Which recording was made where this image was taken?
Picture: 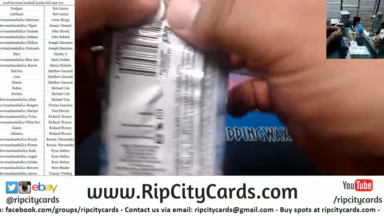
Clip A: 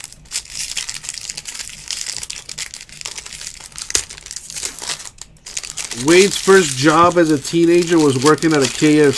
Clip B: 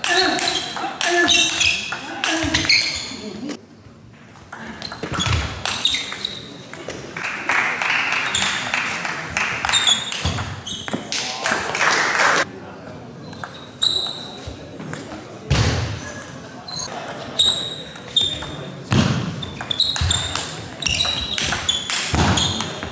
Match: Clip A